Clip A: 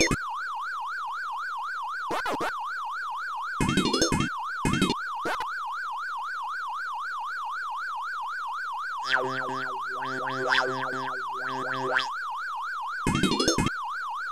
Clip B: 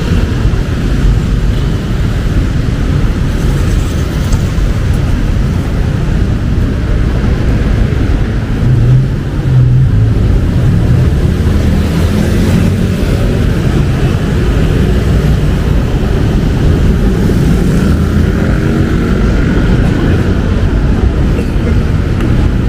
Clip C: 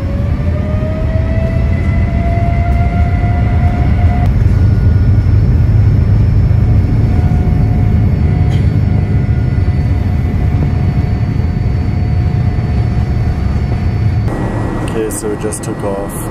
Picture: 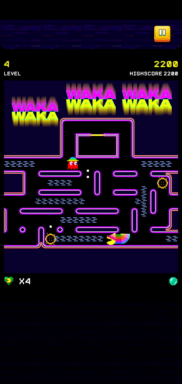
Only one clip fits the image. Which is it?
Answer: A